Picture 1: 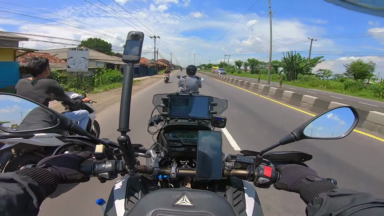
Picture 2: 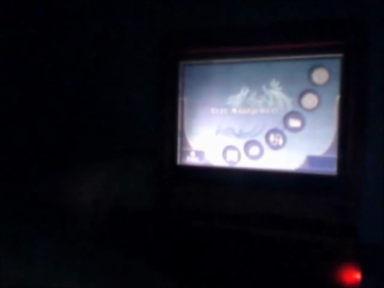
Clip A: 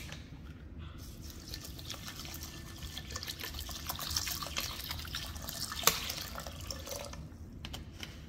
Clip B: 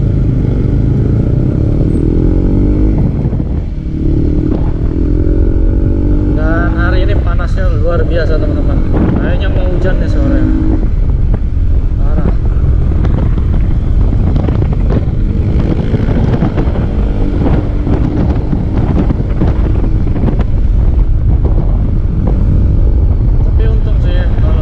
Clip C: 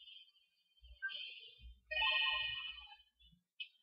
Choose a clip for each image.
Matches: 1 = B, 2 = C